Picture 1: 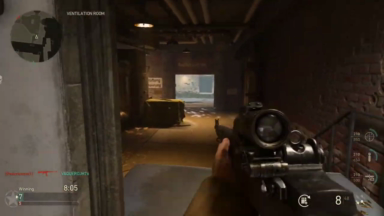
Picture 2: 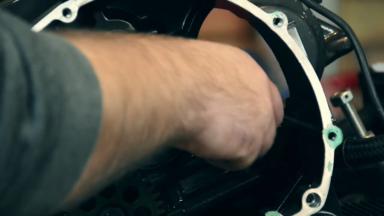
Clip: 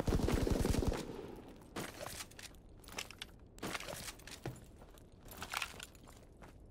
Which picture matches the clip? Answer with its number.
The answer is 1